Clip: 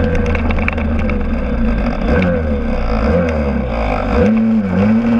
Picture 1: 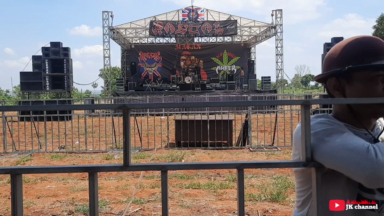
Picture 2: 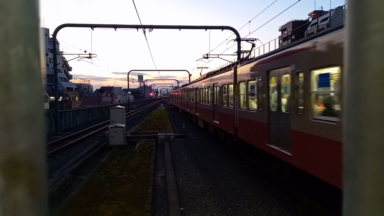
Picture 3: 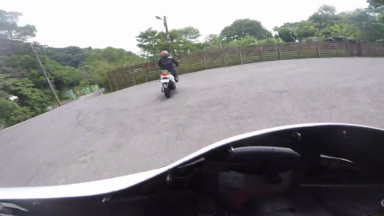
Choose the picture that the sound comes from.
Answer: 3